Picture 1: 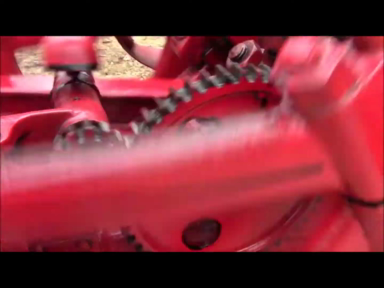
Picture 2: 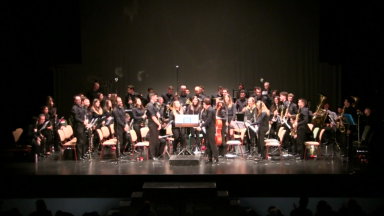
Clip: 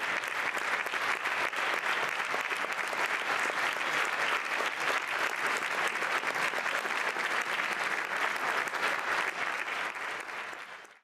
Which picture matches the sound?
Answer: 2